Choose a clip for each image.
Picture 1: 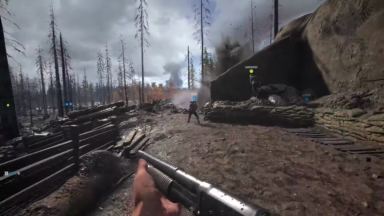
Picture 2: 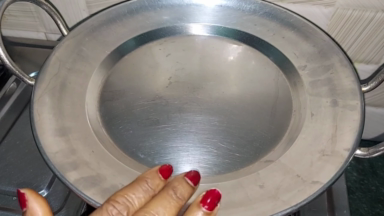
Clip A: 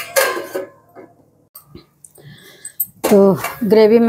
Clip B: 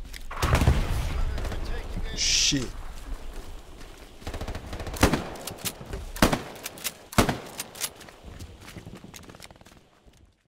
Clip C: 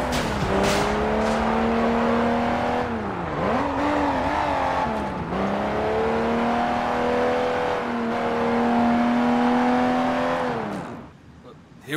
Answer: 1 B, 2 A